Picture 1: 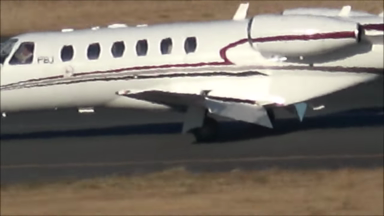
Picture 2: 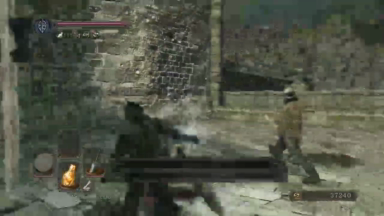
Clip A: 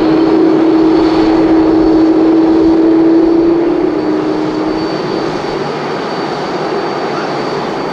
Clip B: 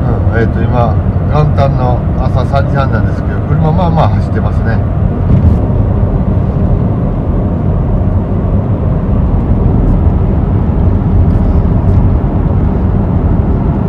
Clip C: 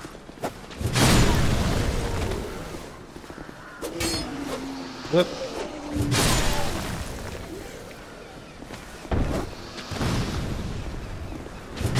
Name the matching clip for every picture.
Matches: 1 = A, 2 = C